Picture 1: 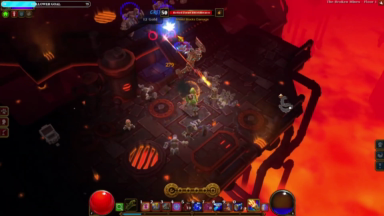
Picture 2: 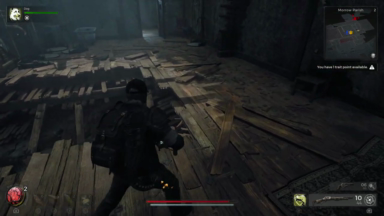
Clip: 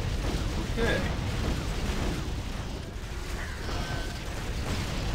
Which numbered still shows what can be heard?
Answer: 1